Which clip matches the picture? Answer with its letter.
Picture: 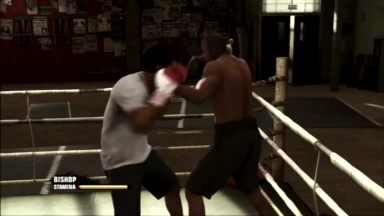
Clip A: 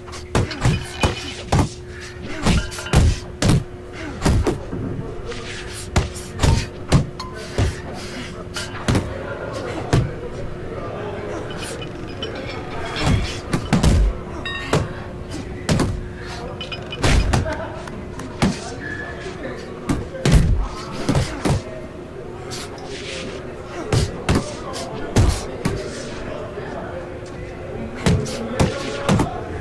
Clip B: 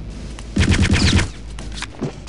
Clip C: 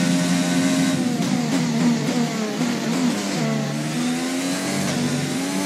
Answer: A